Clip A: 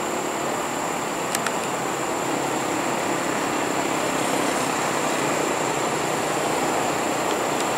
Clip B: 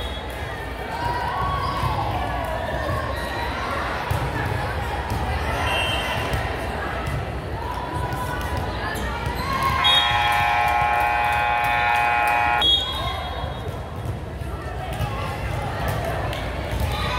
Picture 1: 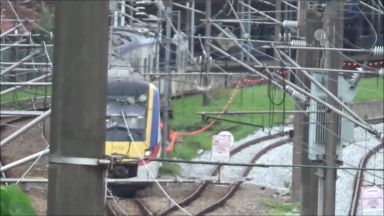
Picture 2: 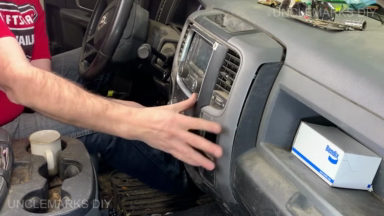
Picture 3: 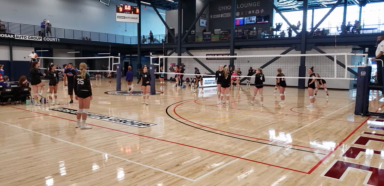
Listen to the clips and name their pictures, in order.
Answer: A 1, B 3